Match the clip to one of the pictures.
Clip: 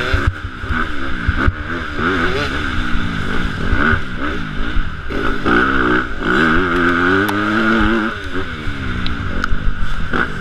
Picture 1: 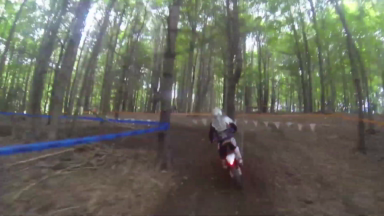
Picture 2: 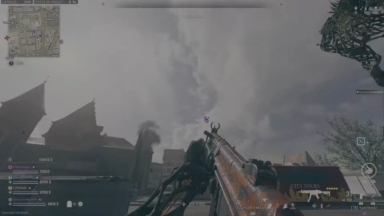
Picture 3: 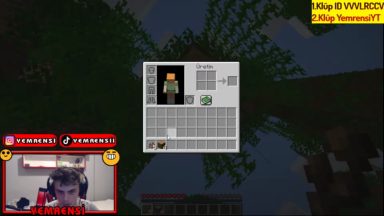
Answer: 1